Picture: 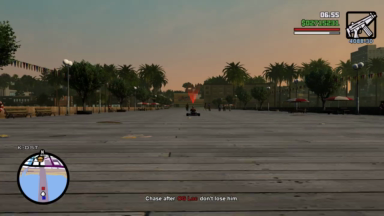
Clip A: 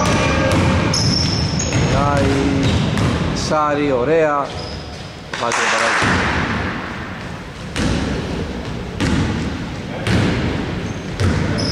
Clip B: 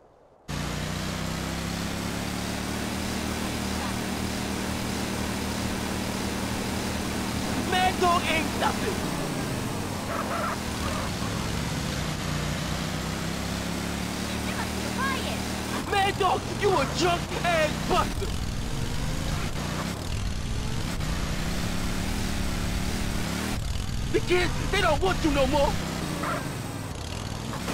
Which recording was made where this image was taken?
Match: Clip B